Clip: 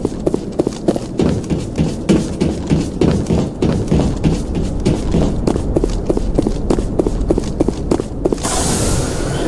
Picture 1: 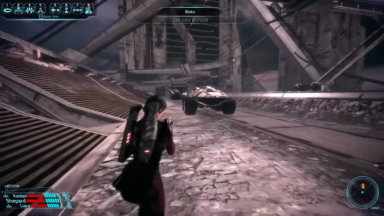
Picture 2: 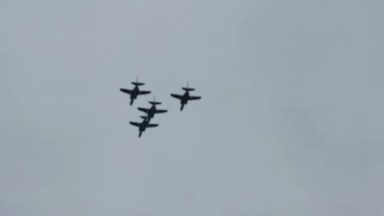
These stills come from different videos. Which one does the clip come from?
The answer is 1